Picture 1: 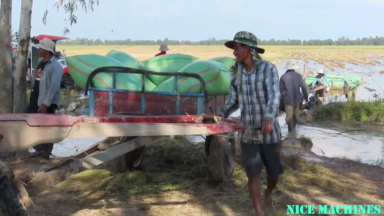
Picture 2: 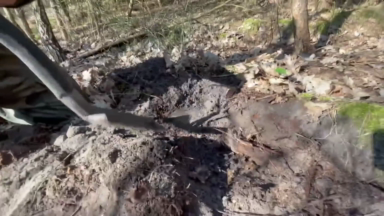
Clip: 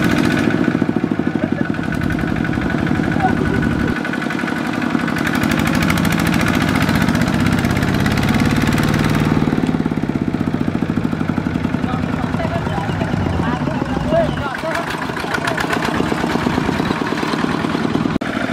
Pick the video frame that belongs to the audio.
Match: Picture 1